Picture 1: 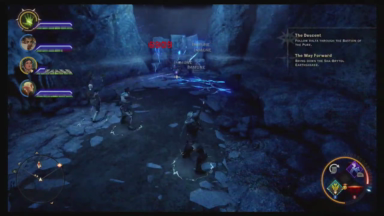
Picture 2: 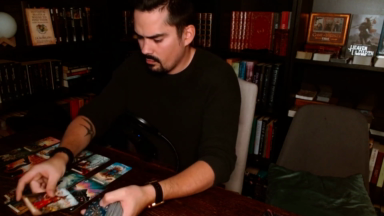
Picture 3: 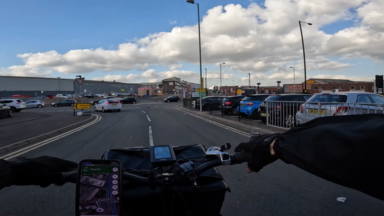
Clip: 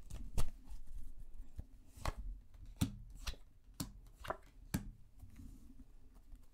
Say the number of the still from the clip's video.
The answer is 2